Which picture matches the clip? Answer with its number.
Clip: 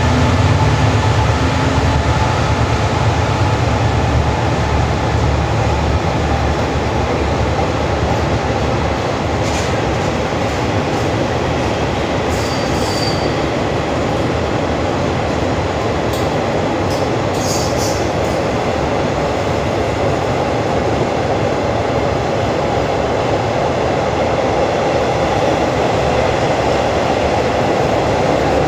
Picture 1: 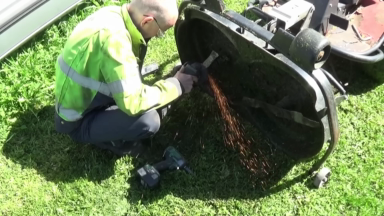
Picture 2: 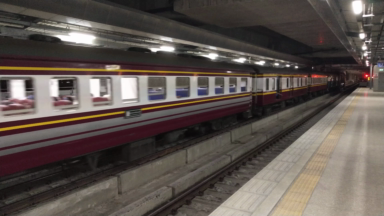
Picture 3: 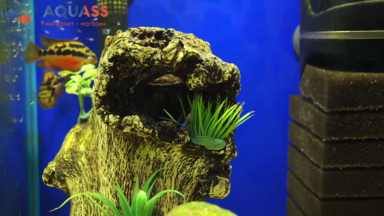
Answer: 2